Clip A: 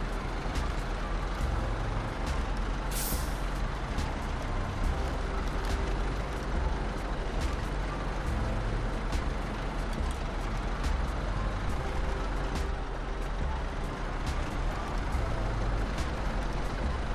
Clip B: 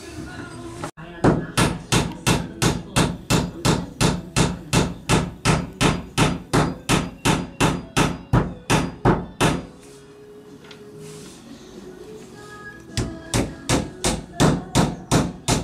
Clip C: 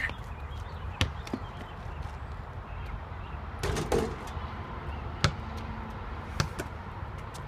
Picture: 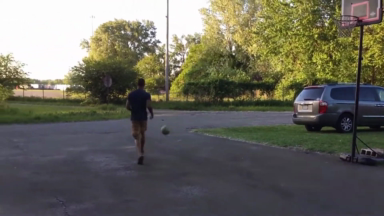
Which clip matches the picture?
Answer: C